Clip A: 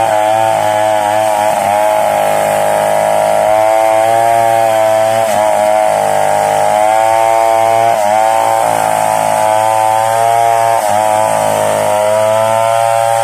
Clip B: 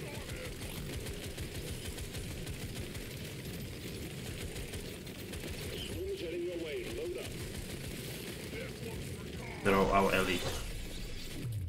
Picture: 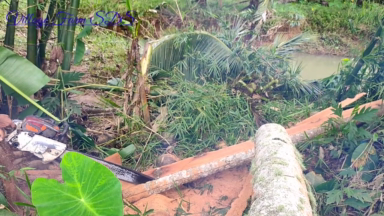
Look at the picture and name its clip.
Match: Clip A